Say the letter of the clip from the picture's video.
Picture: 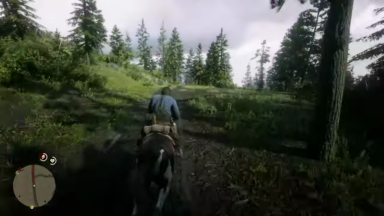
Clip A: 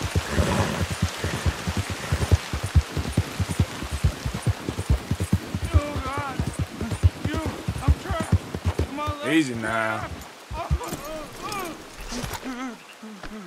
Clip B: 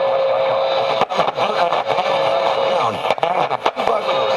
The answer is A